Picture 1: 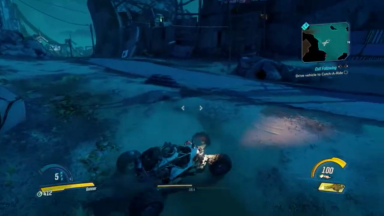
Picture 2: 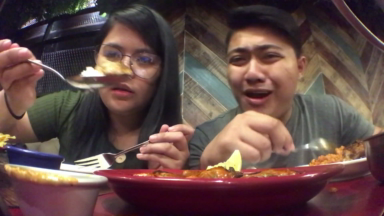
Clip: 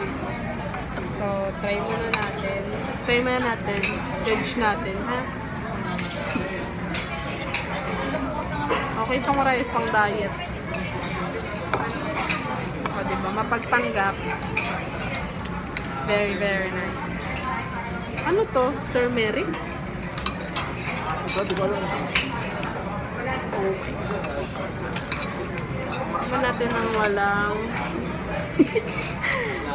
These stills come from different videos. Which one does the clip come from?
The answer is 2